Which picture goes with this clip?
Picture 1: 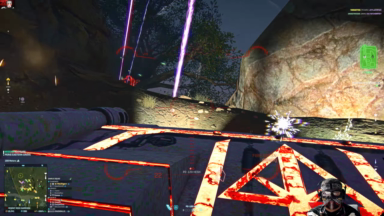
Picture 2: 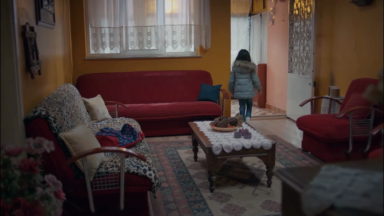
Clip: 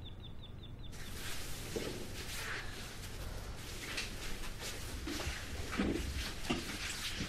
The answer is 2